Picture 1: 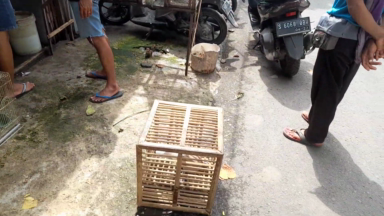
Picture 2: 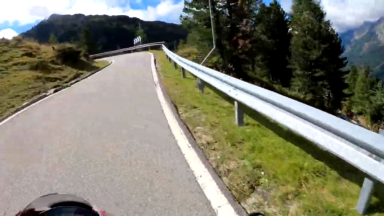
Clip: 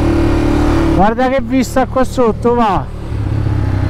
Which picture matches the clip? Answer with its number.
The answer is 2